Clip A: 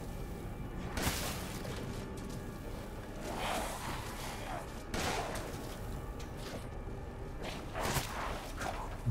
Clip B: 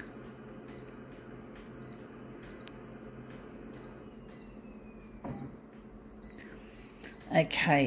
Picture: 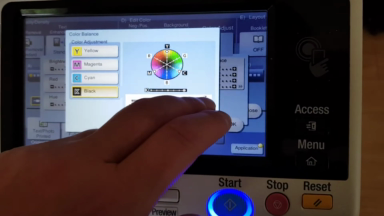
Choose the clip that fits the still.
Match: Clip B